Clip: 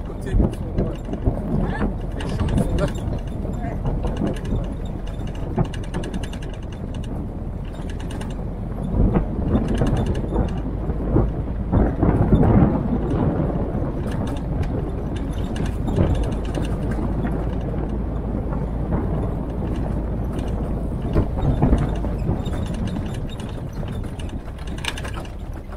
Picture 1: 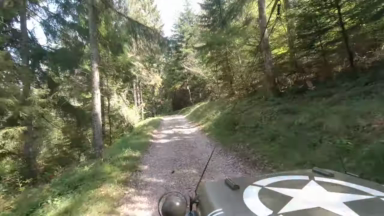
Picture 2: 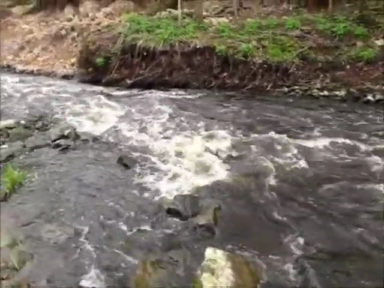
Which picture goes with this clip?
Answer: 1